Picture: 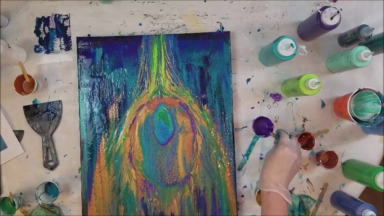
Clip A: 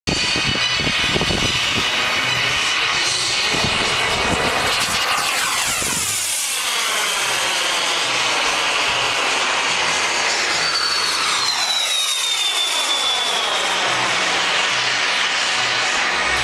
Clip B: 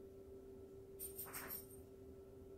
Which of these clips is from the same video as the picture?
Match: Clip B